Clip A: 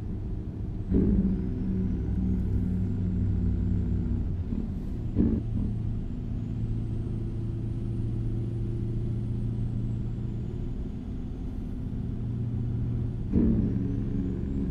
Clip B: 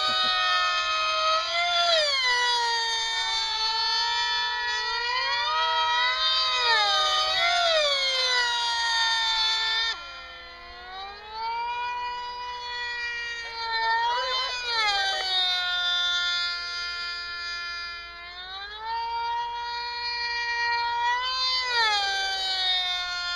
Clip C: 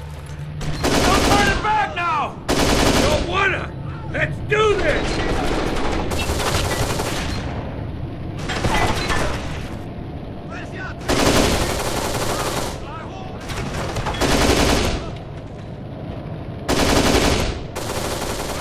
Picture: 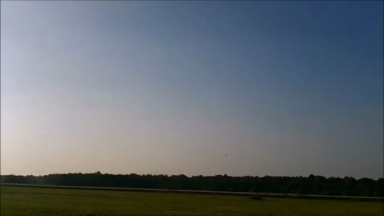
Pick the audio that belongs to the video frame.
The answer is B